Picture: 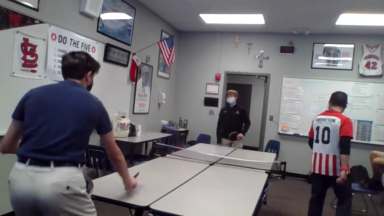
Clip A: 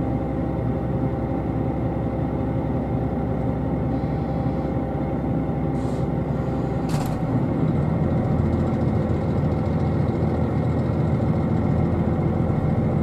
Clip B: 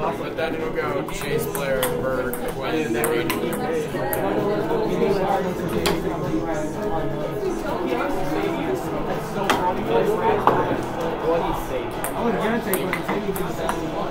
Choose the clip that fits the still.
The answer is B